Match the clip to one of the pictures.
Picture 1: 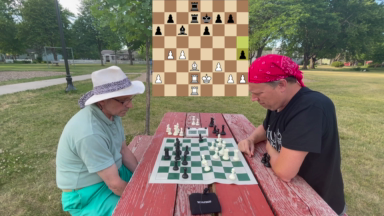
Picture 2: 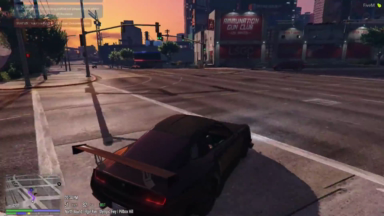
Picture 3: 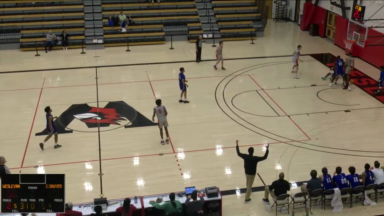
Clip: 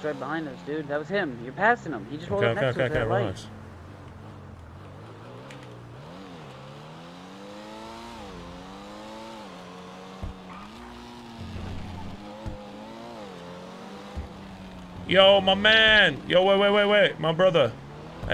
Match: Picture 2